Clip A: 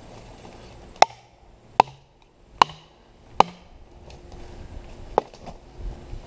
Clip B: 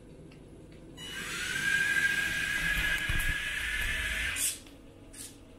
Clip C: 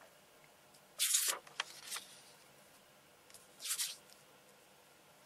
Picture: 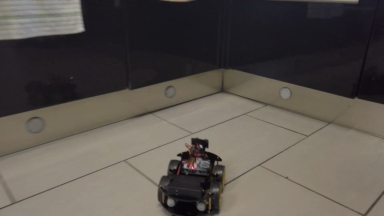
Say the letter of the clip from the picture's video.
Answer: B